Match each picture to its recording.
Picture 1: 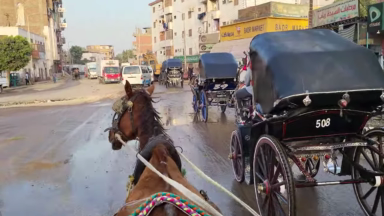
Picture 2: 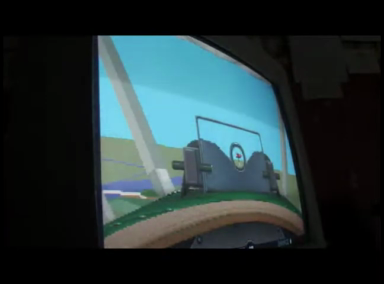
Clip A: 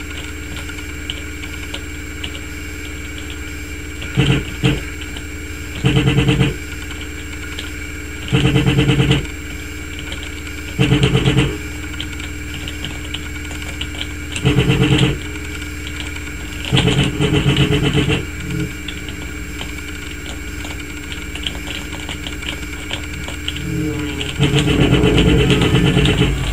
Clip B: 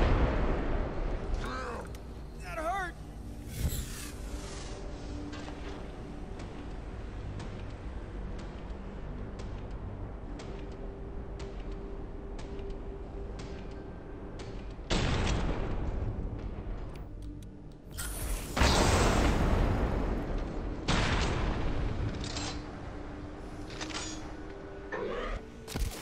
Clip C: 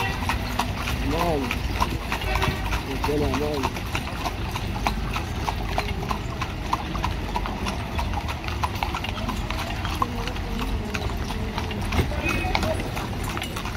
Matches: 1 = C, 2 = A